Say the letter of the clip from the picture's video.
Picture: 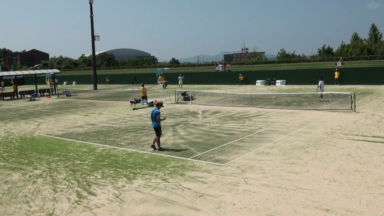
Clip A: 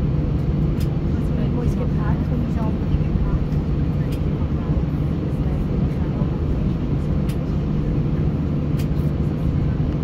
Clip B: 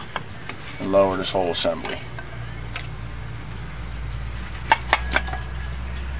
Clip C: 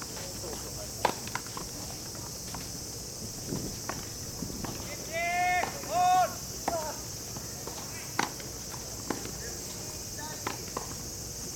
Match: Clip C